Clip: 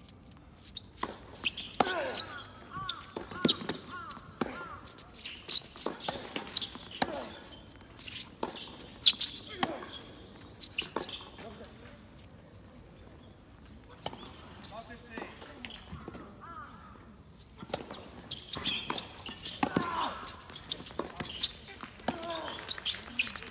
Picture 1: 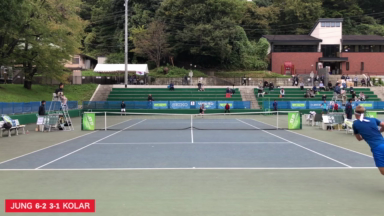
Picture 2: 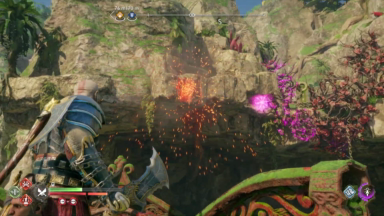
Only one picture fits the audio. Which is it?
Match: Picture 1